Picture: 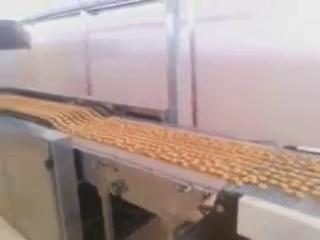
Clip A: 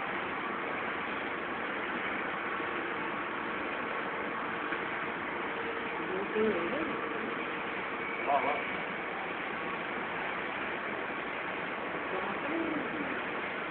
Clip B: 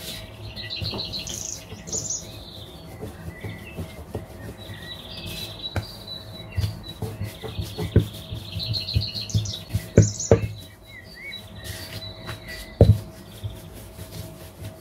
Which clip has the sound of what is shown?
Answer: A